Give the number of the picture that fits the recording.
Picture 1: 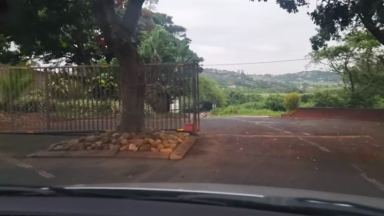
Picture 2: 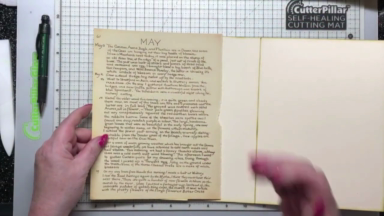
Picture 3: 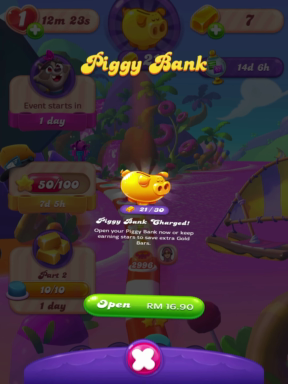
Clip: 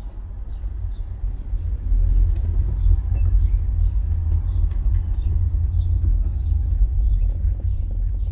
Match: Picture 1